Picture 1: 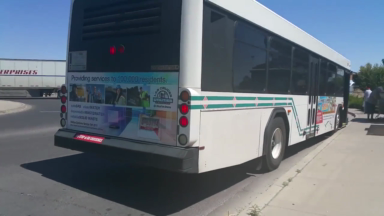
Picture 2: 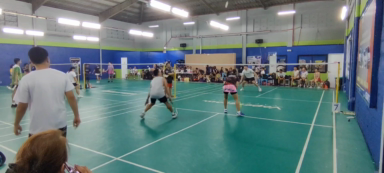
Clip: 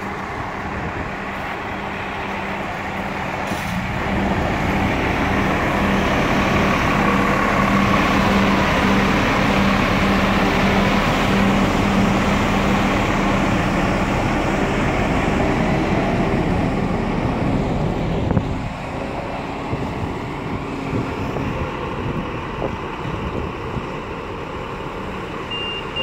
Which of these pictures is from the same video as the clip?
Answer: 1